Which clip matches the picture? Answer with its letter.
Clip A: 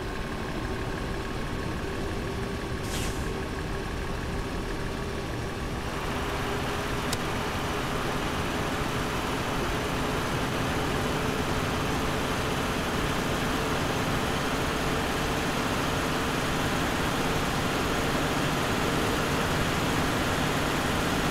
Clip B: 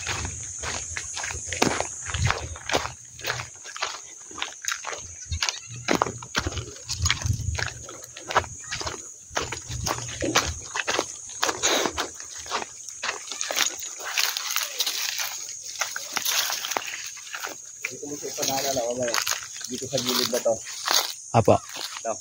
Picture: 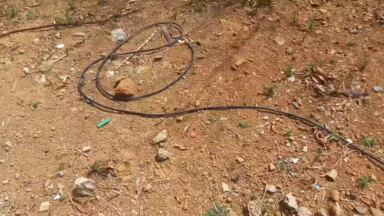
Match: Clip B